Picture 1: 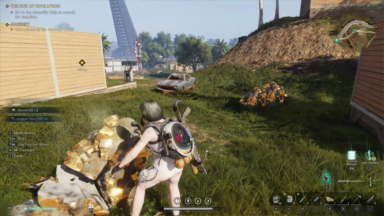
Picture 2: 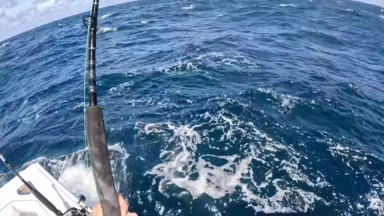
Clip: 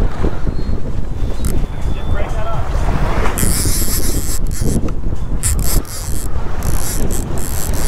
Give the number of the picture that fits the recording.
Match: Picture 2